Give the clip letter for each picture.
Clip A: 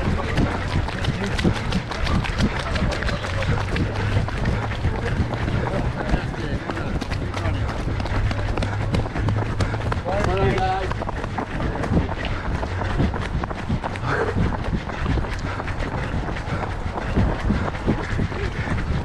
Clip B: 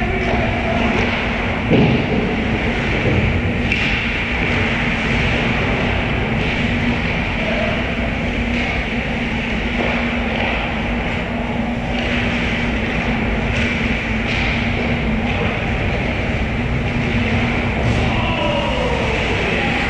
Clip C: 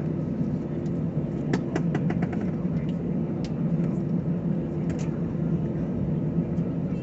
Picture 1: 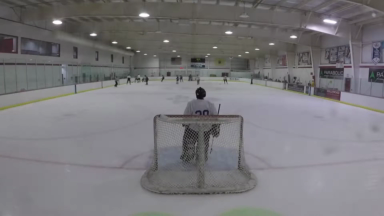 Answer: B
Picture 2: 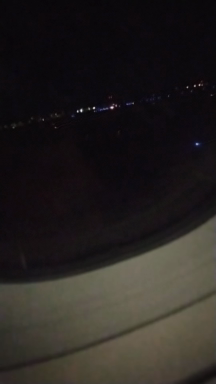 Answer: C